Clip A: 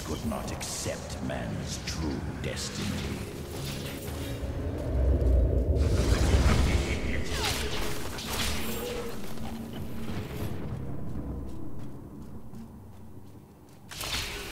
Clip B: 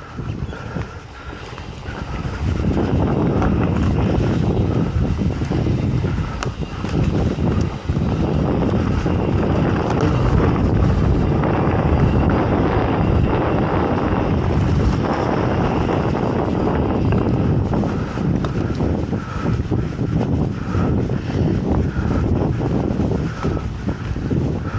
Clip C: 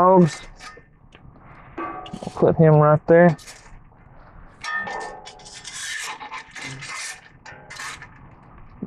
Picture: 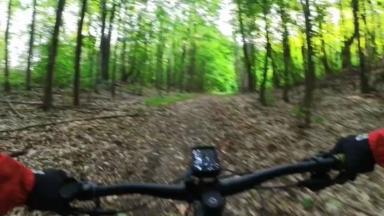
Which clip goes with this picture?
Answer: B